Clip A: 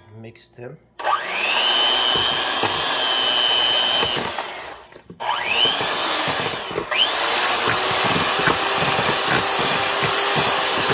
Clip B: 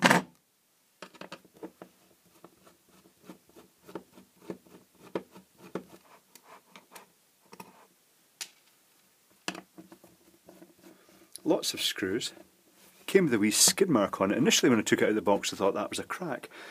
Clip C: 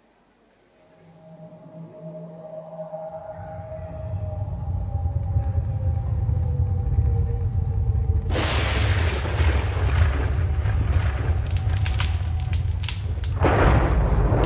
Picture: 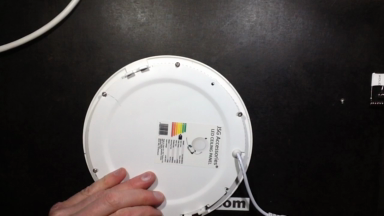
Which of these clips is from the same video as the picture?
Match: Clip B